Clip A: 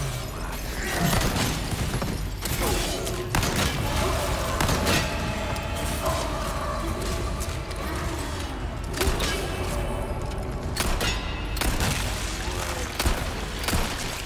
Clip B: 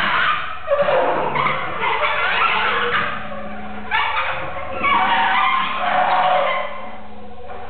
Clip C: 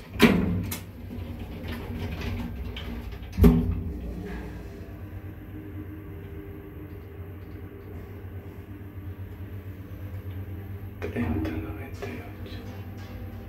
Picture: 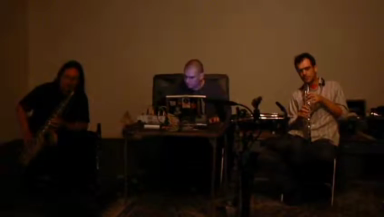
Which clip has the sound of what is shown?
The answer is B